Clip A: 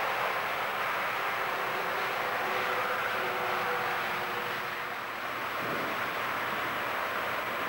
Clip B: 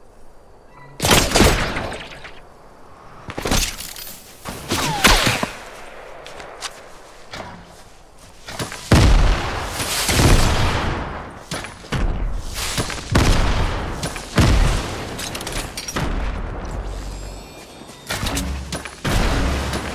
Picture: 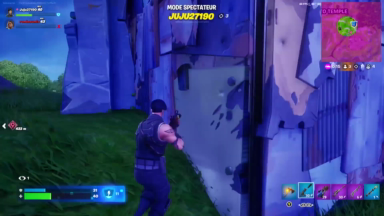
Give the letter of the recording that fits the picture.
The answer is B